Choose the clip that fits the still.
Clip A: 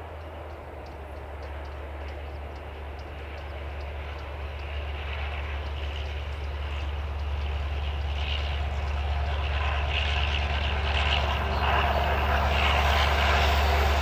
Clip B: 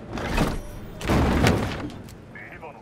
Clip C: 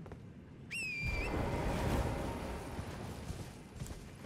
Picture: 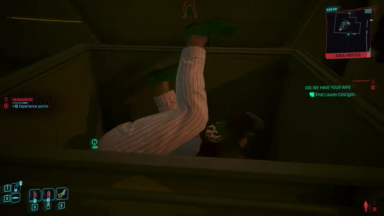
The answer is B